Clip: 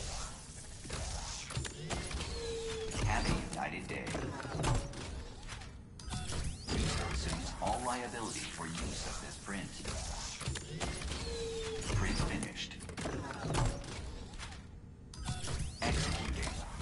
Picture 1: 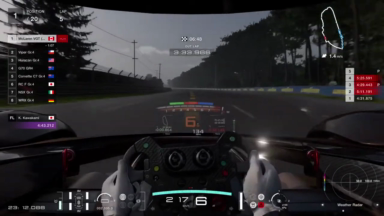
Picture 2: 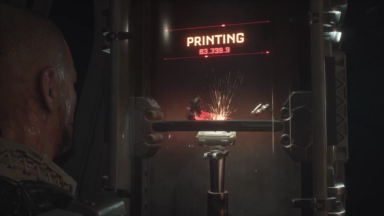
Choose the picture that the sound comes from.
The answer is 2